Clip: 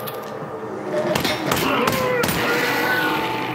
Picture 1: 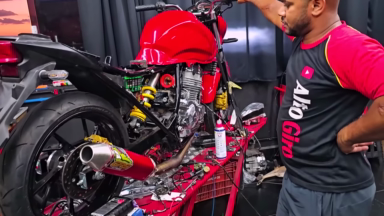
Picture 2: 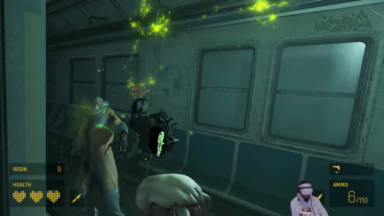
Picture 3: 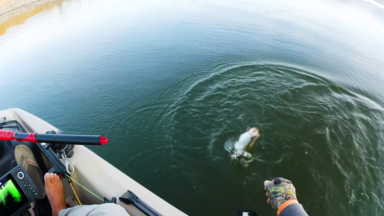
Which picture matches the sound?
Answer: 2